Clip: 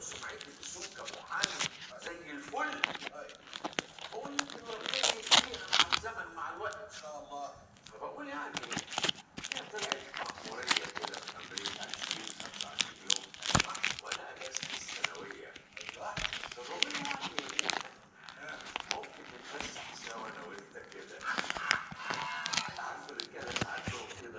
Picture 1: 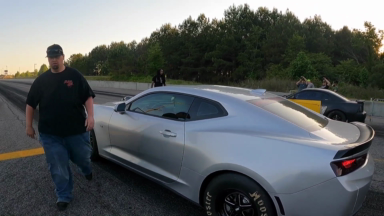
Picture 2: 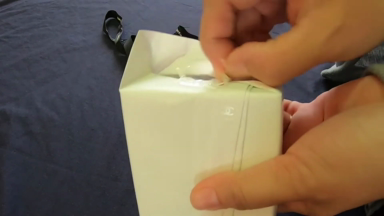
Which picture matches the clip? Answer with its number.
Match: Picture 2